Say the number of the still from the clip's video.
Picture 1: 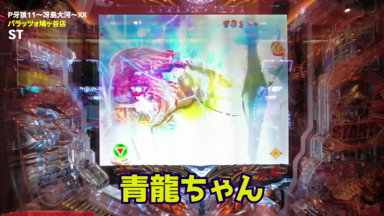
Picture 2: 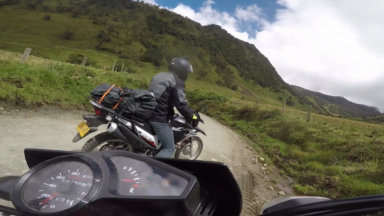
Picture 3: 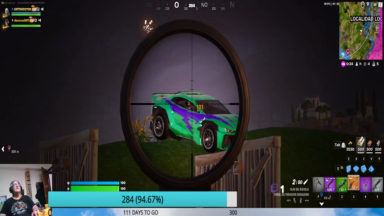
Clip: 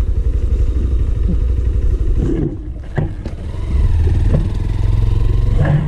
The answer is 2